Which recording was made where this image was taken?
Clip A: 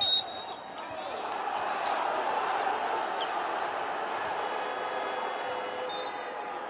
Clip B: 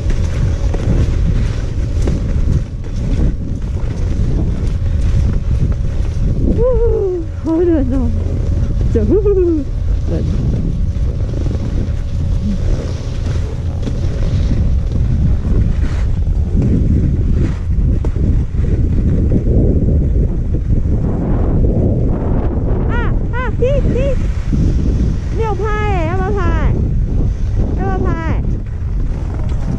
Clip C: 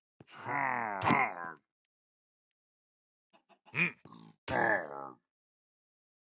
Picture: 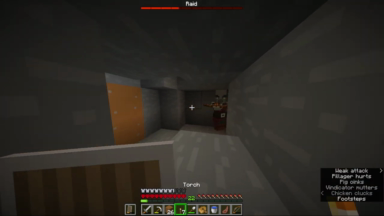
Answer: C